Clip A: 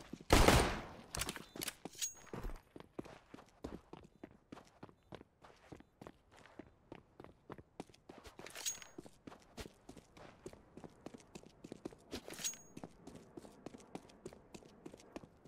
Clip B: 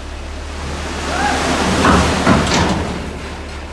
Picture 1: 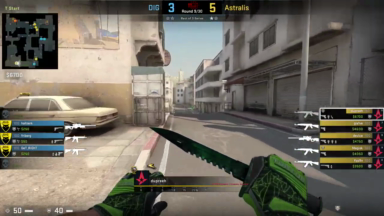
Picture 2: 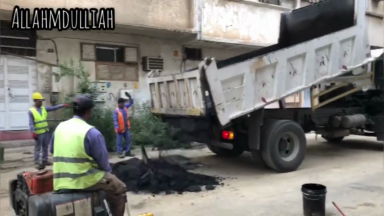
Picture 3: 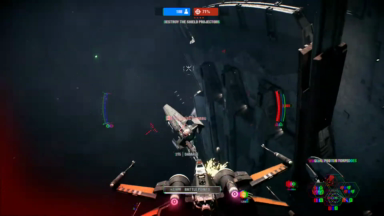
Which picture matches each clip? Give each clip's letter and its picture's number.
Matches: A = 1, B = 2